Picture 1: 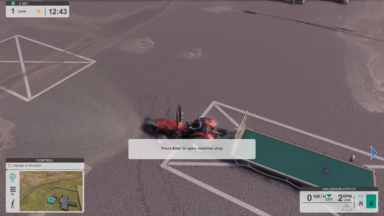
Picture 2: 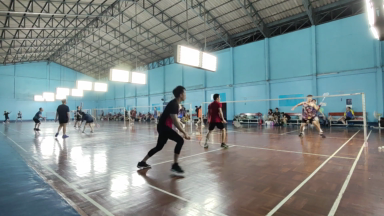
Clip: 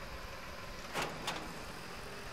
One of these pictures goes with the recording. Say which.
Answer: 1